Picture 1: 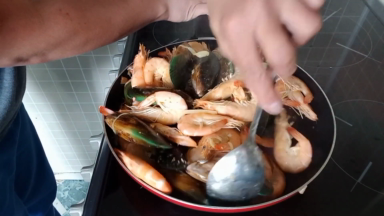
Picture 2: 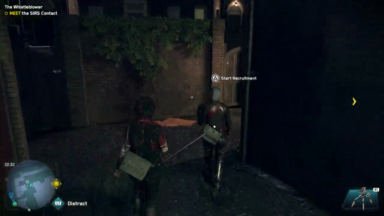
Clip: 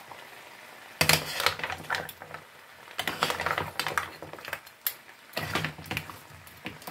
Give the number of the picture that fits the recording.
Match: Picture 1